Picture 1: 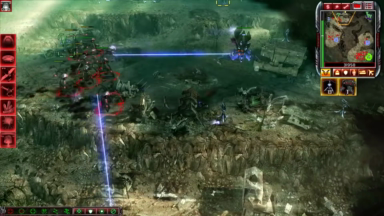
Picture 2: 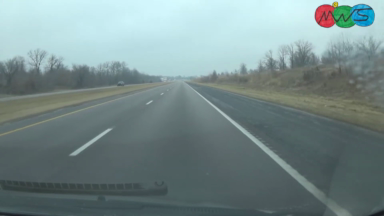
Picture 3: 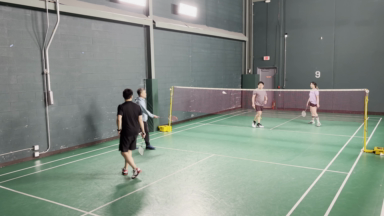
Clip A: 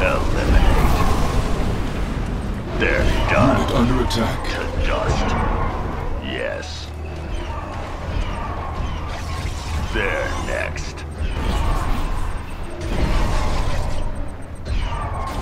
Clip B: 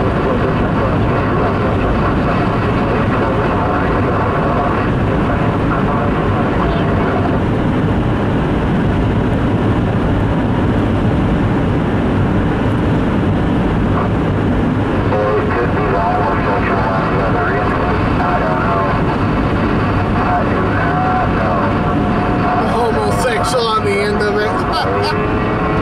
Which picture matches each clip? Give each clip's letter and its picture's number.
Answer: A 1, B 2